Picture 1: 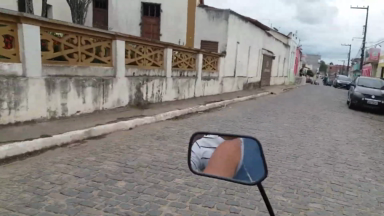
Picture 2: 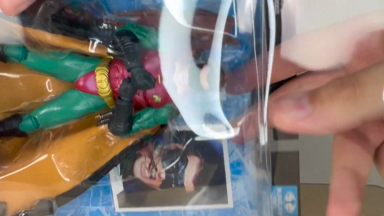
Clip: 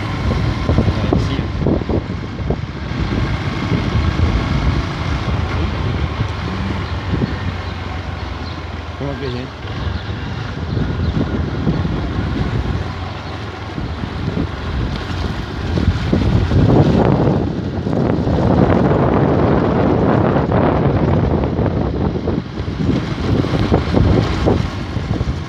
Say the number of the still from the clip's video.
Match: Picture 1